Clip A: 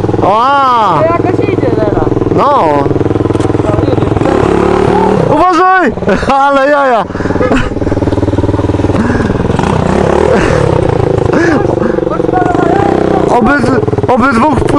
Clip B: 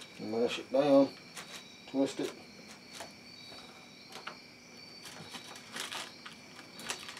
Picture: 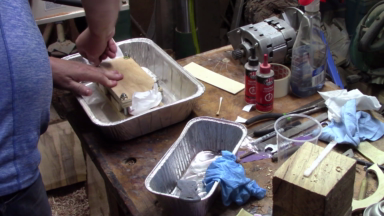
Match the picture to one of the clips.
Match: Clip B